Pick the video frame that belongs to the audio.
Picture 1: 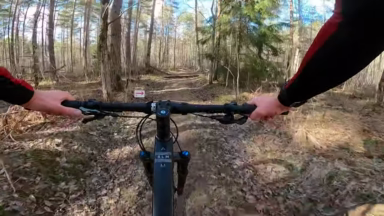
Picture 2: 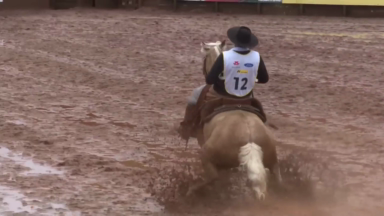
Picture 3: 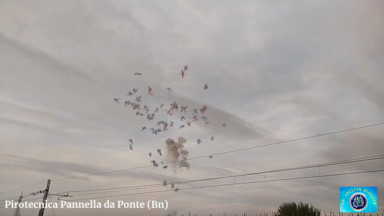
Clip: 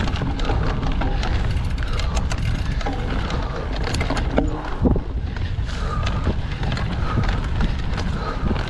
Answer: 1